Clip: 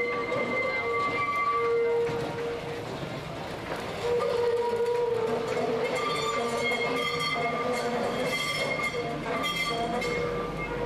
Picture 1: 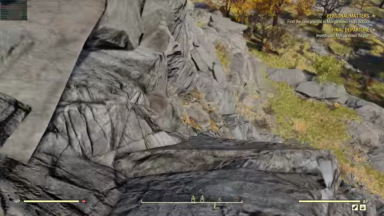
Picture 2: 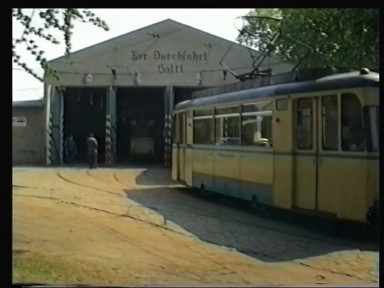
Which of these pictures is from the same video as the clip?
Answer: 2